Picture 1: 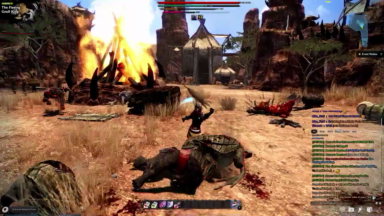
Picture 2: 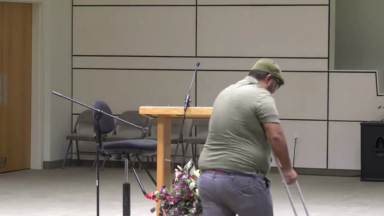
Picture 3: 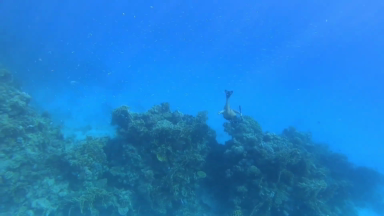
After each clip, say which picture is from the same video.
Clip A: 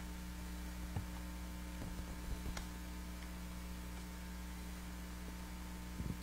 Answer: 2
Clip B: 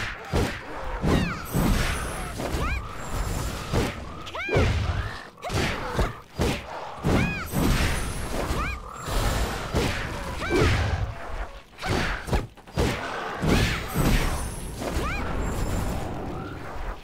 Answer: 1